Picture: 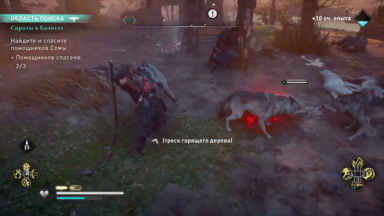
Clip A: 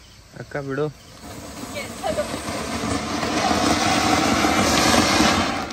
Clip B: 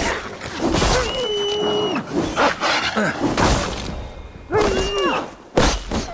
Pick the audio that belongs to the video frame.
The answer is B